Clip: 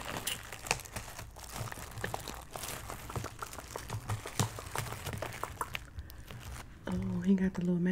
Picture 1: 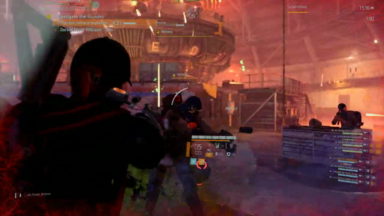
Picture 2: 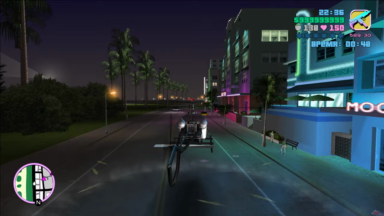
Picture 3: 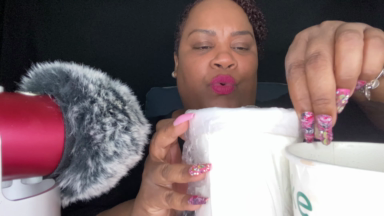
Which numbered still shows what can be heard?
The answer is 3